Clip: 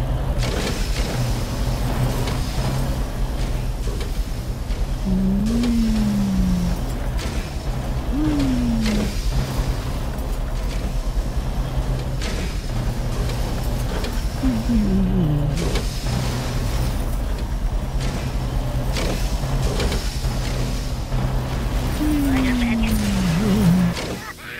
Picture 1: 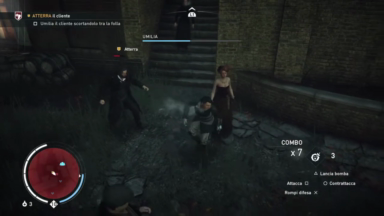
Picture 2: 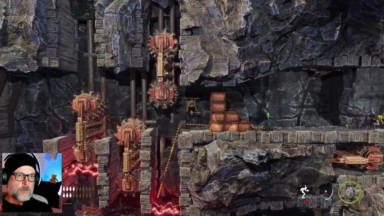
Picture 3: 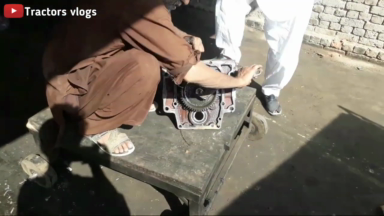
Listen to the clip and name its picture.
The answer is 2